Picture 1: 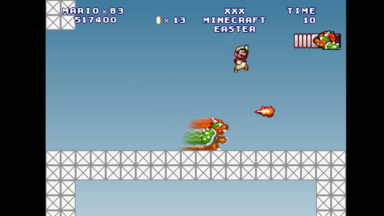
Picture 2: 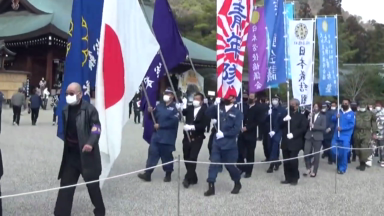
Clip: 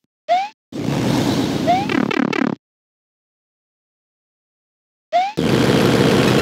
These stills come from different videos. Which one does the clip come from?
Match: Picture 1